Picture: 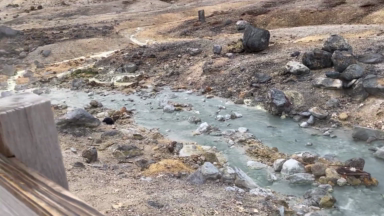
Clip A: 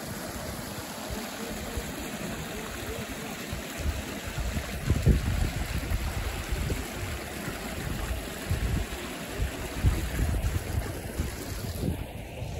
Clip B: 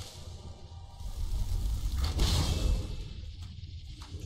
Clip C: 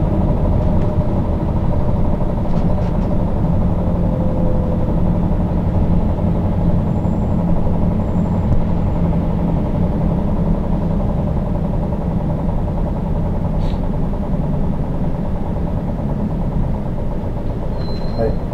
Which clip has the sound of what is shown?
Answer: A